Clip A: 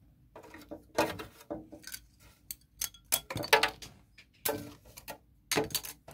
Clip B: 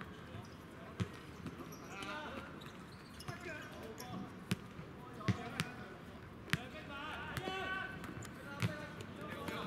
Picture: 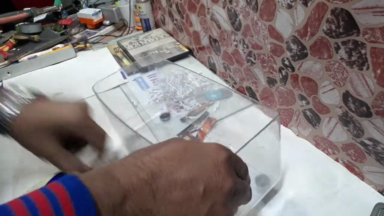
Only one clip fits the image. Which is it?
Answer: A